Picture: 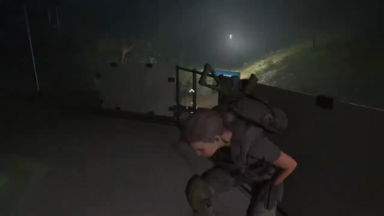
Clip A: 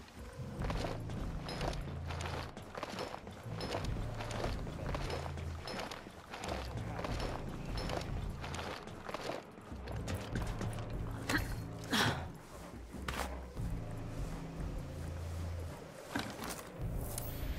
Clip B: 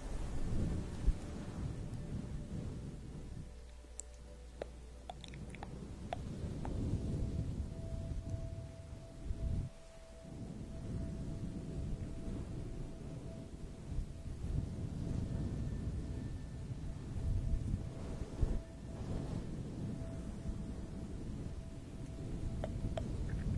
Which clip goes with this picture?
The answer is A